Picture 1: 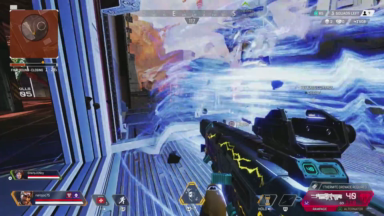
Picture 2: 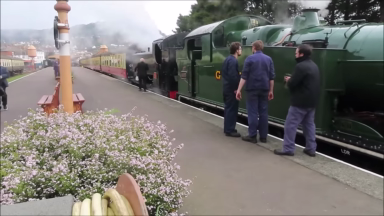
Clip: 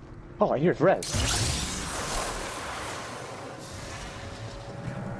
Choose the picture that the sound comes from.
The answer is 1